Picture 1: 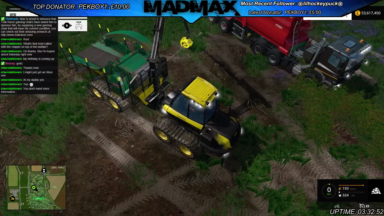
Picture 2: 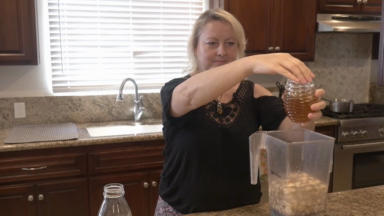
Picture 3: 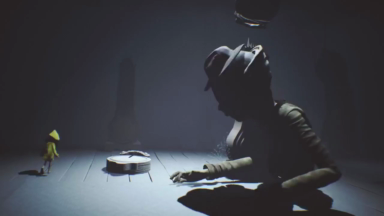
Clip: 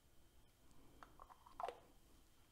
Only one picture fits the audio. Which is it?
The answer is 2